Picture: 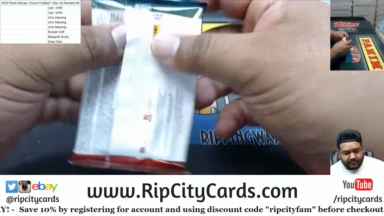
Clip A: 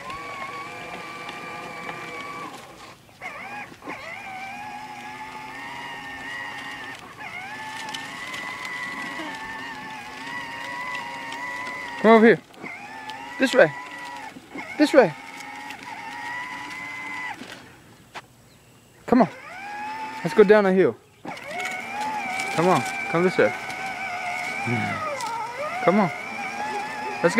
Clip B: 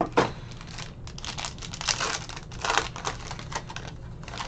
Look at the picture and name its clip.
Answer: B